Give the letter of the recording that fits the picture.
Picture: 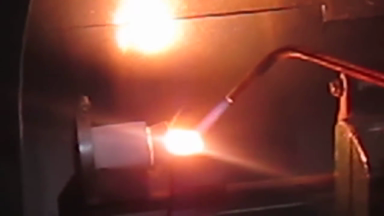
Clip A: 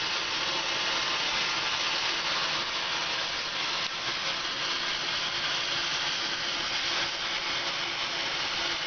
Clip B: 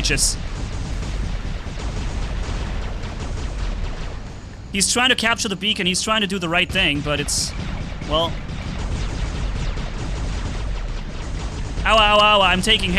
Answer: A